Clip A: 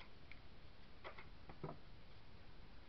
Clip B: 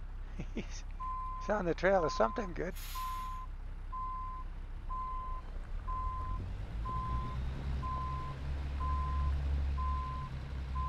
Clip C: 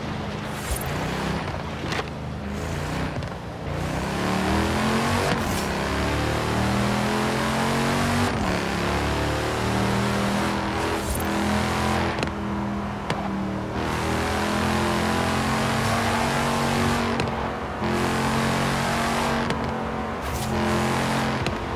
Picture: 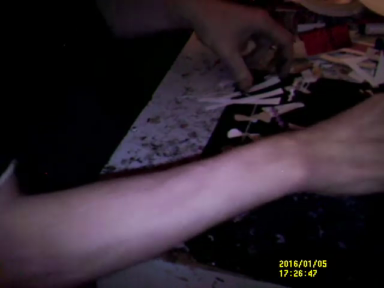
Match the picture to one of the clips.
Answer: A